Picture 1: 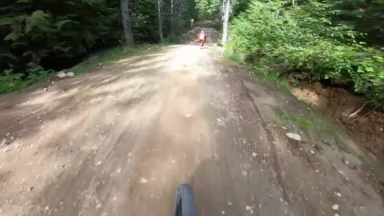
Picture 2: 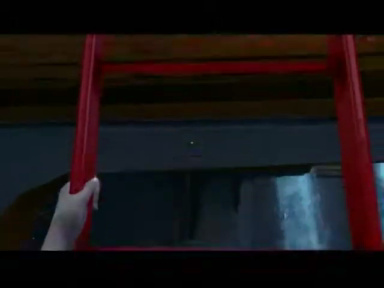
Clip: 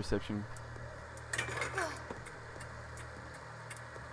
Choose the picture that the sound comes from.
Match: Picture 2